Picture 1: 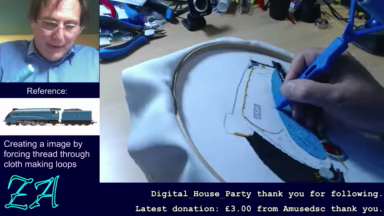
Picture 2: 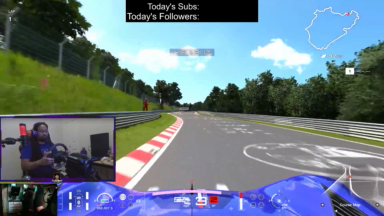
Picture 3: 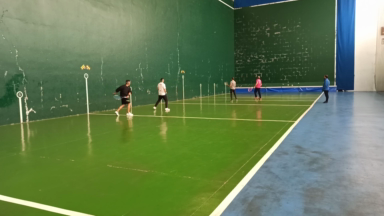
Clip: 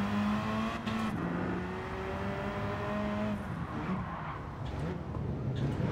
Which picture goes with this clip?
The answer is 2